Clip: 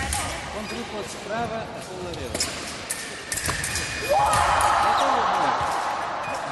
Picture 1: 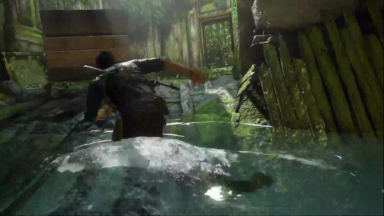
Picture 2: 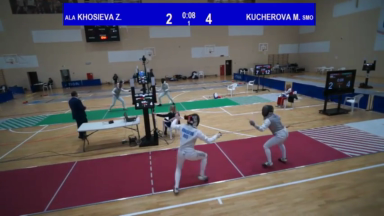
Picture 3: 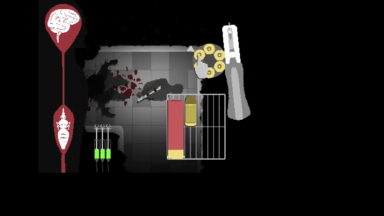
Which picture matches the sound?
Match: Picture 2